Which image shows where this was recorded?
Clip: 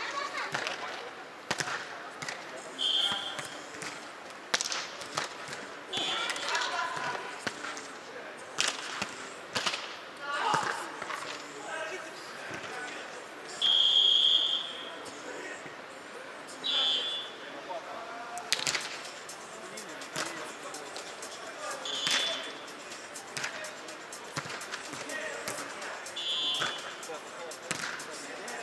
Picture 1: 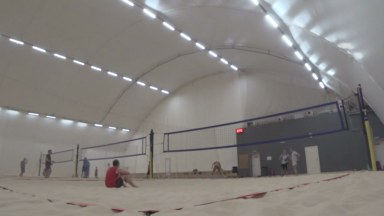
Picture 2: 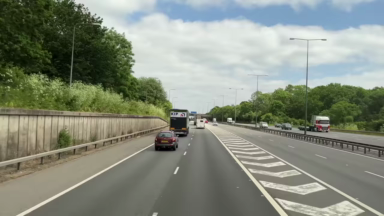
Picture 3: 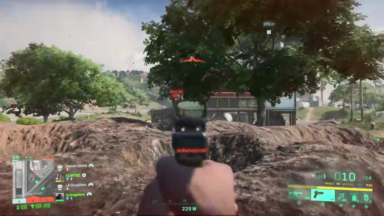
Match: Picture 1